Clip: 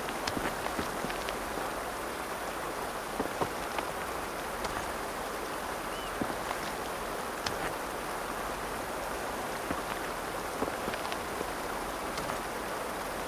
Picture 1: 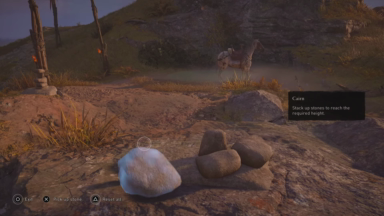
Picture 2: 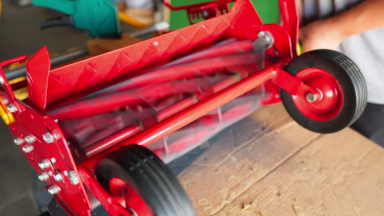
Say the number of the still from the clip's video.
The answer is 1